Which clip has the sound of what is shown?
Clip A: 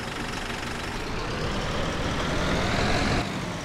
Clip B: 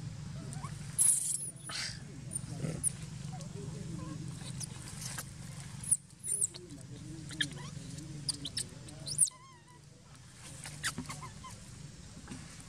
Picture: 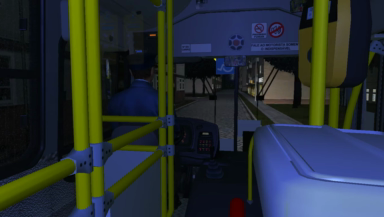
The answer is A